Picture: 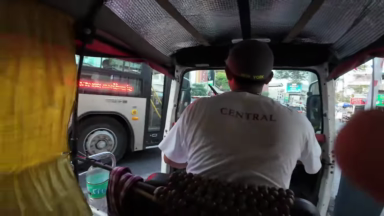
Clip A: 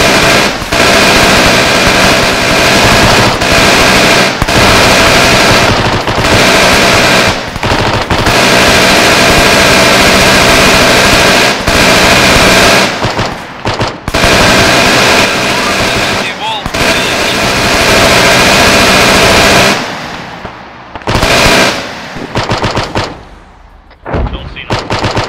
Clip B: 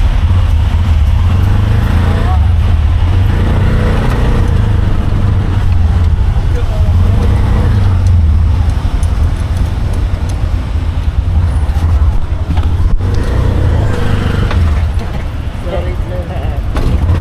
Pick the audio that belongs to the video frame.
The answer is B